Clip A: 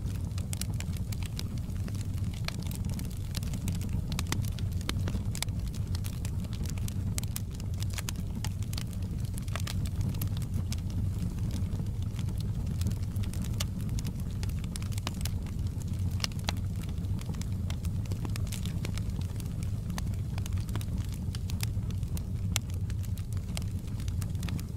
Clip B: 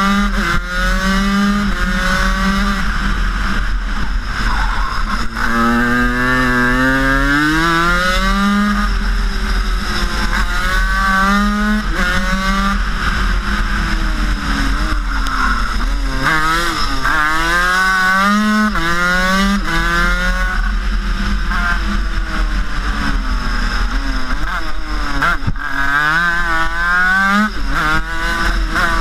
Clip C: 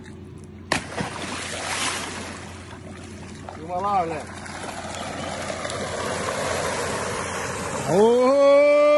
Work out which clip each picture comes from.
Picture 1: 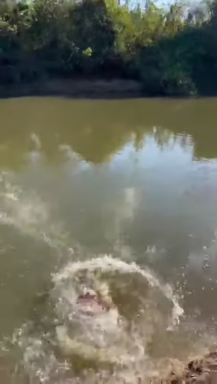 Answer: C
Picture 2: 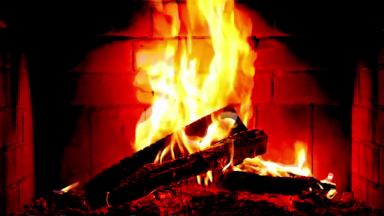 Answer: A